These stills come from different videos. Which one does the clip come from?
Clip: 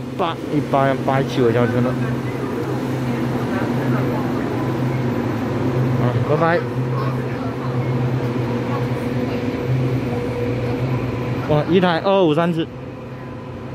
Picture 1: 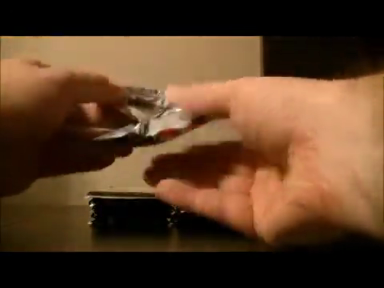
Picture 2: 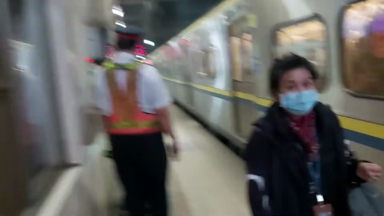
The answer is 2